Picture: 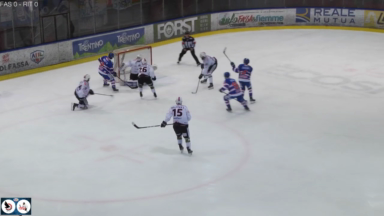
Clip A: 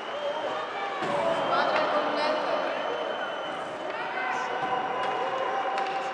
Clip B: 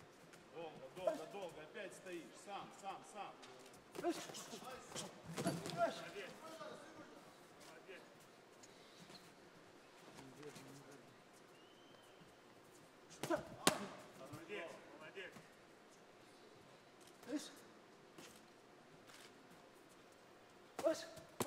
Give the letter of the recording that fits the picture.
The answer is A